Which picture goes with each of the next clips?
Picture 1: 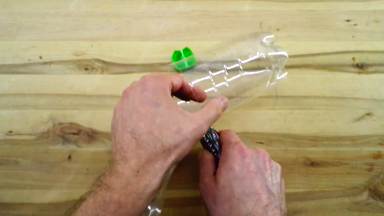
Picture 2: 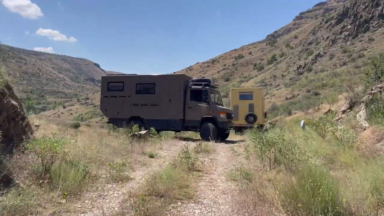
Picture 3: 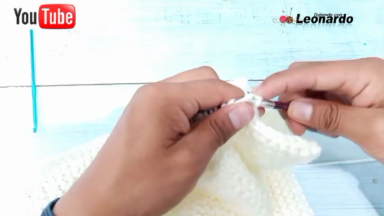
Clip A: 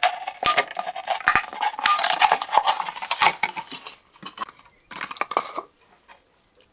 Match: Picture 1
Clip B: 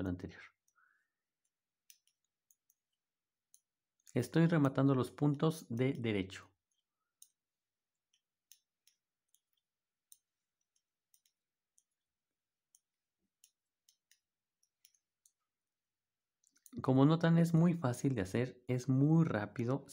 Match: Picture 3